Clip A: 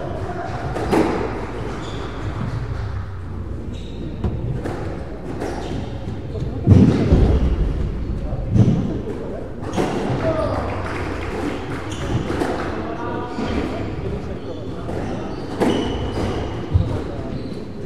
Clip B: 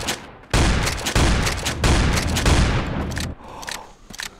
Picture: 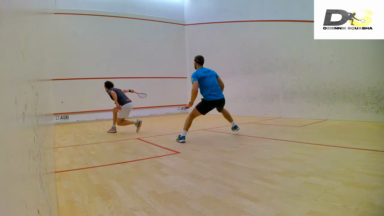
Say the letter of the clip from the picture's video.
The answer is A